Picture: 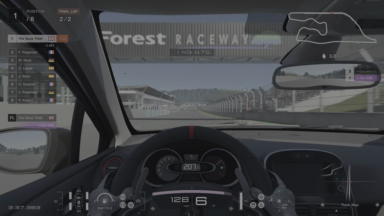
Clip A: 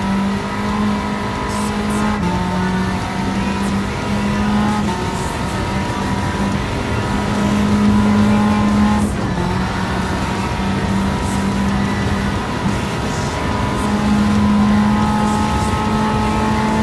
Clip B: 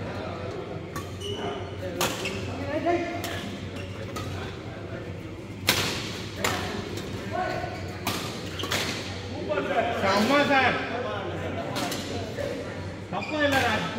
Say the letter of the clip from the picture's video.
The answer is A